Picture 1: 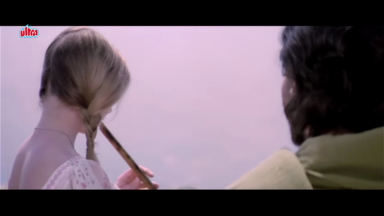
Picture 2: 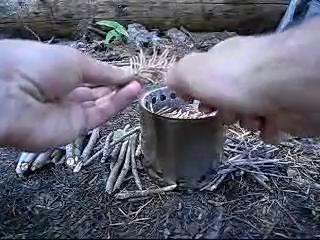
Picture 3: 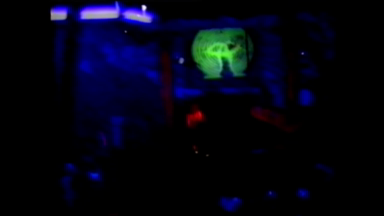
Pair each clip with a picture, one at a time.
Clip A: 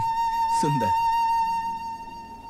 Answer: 1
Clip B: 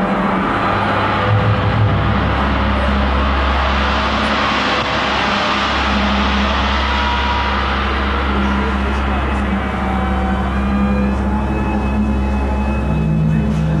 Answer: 3